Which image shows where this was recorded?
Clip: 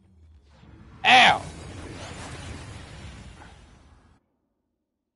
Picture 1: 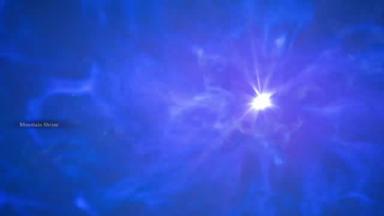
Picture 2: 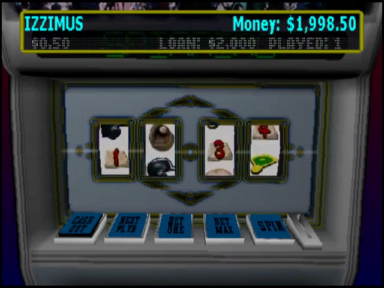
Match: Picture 1